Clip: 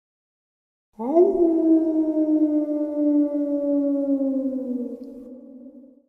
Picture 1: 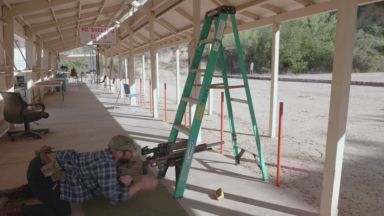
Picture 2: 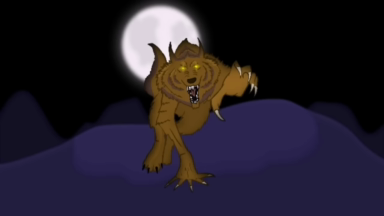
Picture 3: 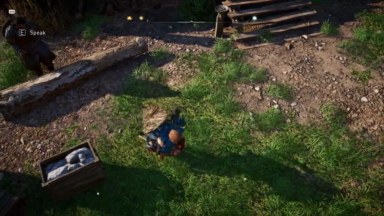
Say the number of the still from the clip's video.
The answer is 2